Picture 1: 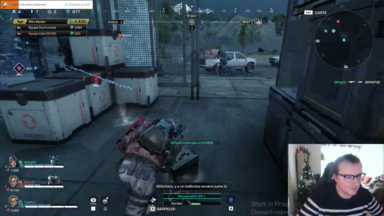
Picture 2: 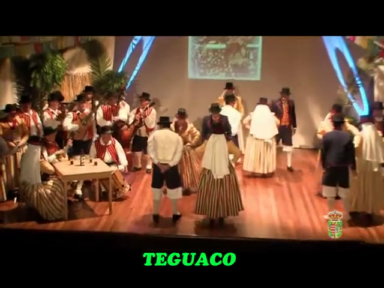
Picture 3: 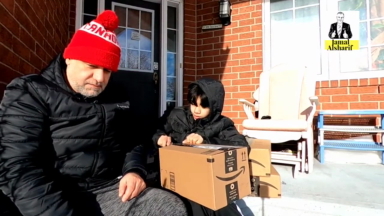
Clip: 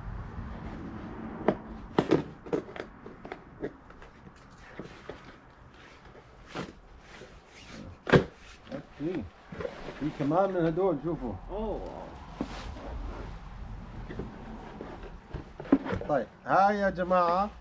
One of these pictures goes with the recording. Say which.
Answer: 3